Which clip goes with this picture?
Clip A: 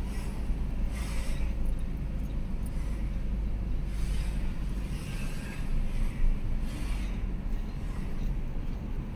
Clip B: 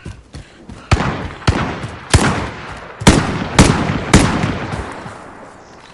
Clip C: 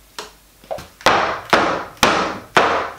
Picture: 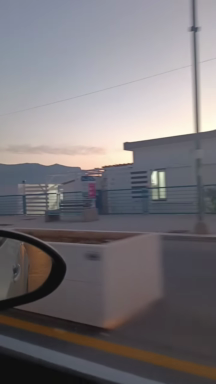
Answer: A